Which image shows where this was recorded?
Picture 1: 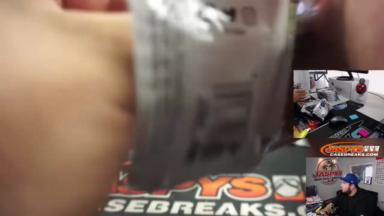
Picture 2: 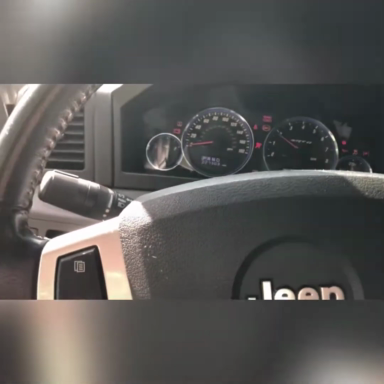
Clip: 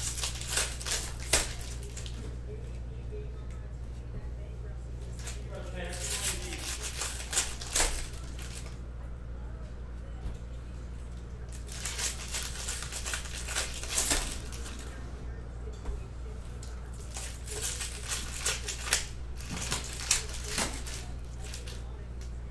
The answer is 1